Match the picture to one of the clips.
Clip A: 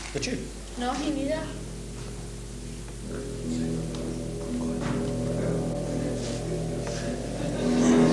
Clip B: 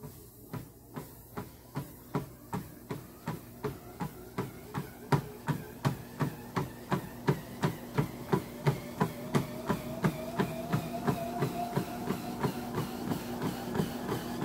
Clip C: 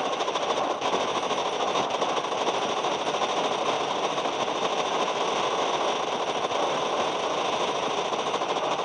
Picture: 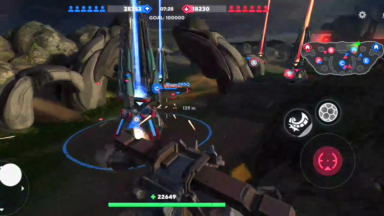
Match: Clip C